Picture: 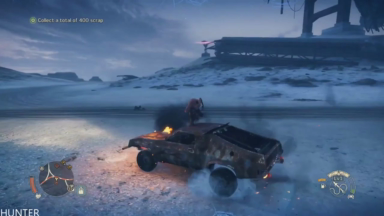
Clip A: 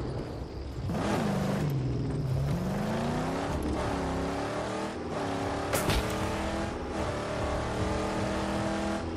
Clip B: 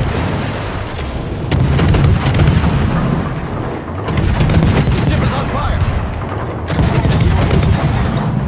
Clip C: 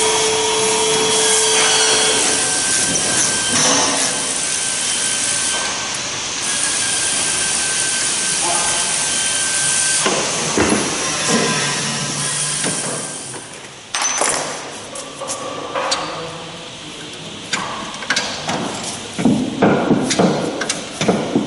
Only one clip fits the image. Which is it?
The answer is A